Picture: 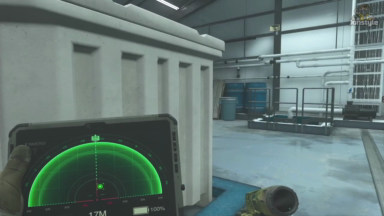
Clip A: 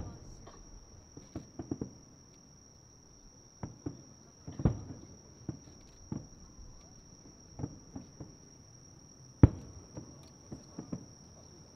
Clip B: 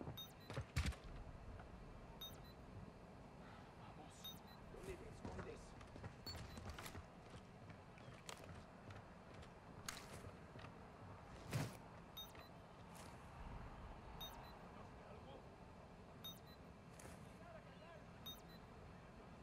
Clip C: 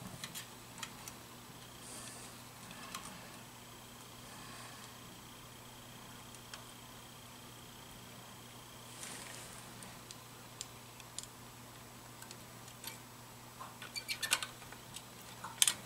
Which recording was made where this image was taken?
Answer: B